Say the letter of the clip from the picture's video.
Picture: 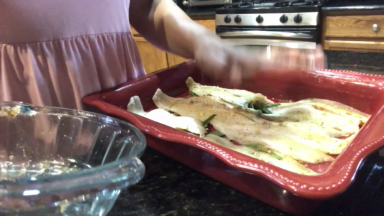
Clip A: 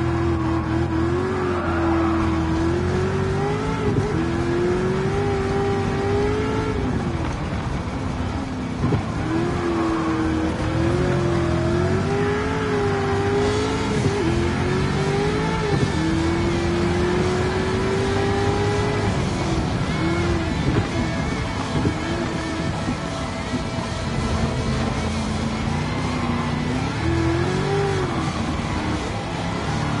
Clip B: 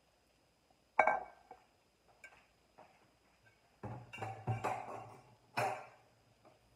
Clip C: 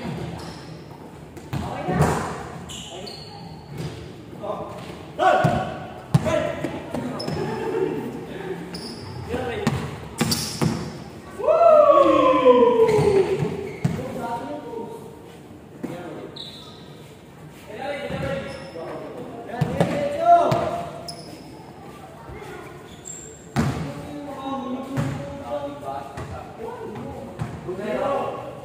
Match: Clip B